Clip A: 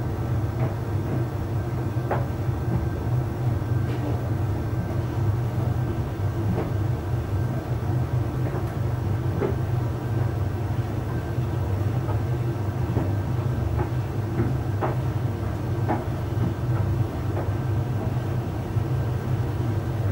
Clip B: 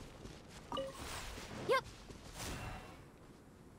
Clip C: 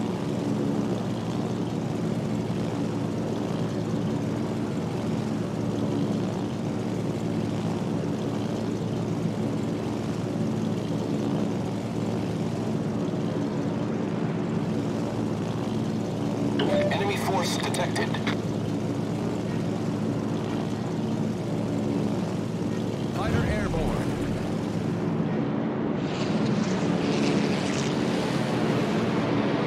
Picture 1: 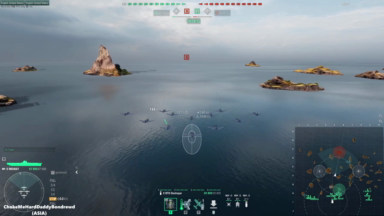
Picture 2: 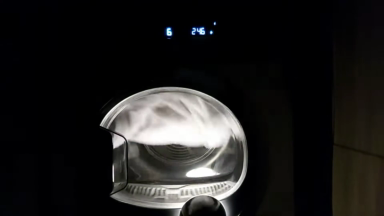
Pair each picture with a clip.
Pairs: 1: C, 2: A